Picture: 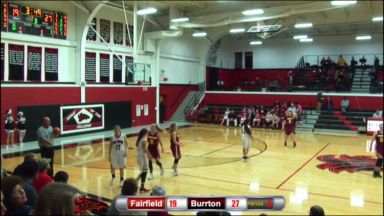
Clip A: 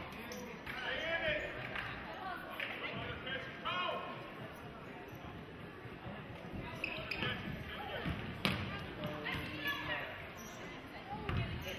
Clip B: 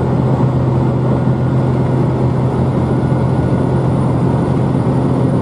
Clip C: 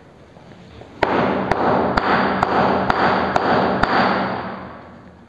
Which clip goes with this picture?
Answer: A